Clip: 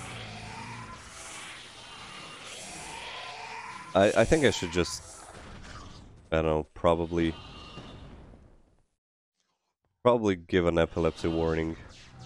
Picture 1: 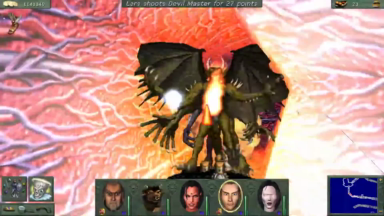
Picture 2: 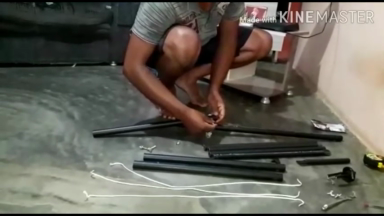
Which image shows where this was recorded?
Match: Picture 1